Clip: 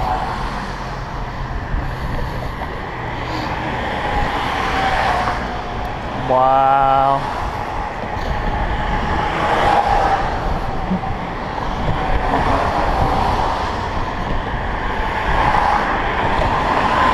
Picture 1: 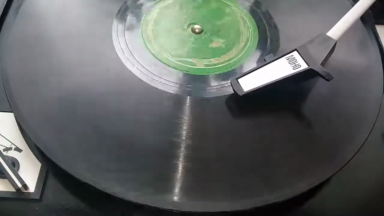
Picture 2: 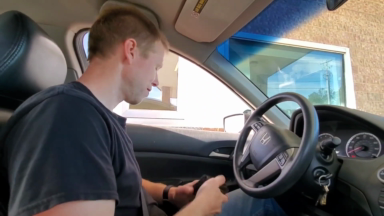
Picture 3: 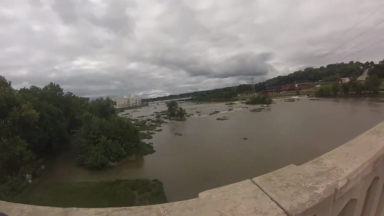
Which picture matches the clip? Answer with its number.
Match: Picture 3